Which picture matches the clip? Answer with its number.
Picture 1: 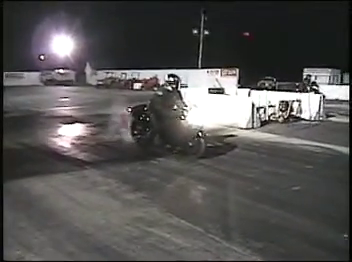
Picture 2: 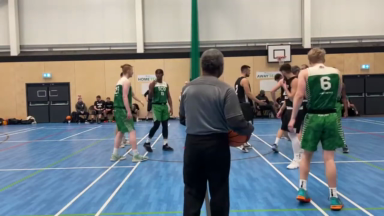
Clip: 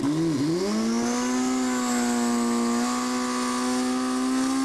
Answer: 1